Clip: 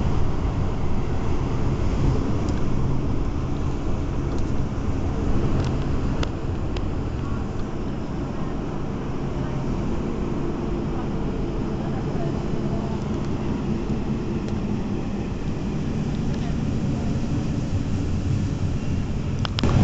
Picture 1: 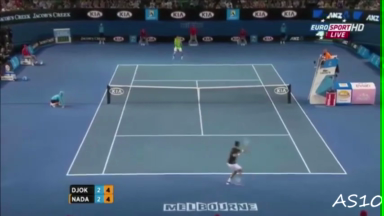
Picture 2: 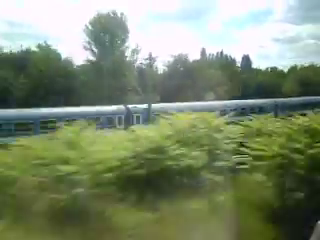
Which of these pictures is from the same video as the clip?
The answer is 2